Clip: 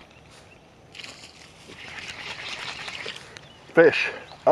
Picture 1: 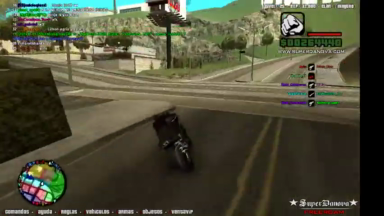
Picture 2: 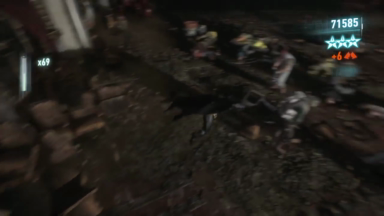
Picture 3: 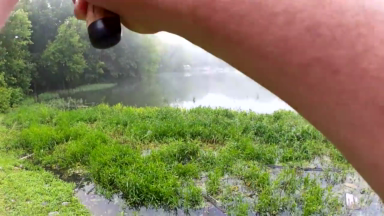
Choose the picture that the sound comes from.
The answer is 3